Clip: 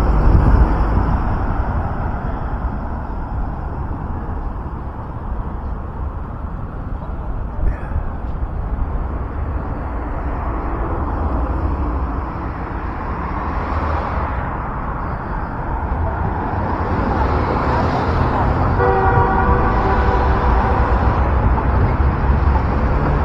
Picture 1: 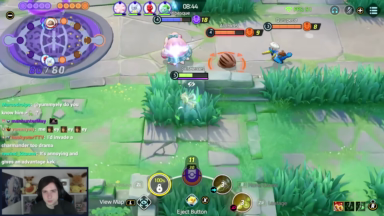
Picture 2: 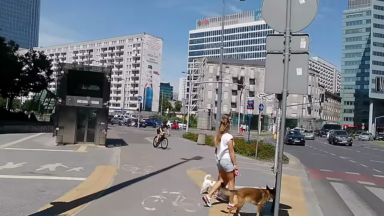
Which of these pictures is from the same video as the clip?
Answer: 2